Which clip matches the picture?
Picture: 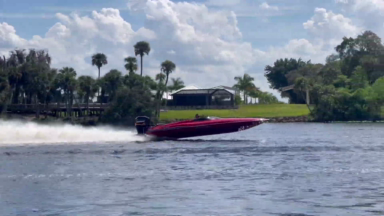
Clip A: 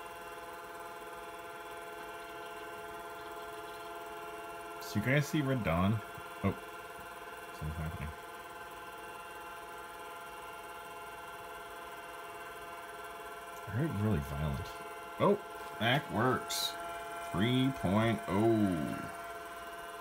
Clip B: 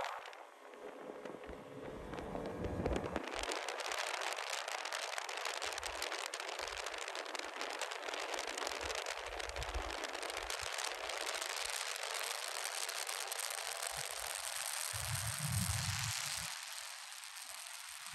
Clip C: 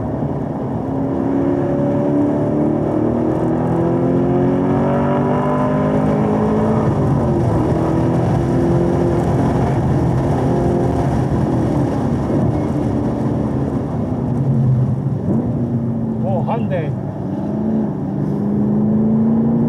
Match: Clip B